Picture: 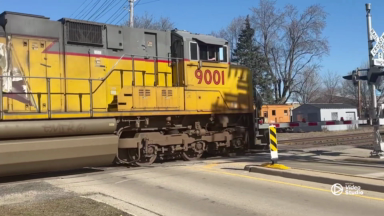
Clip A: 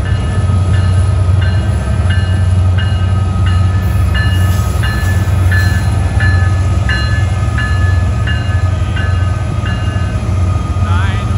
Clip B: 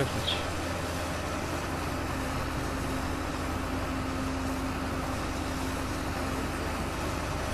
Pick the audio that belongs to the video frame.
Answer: A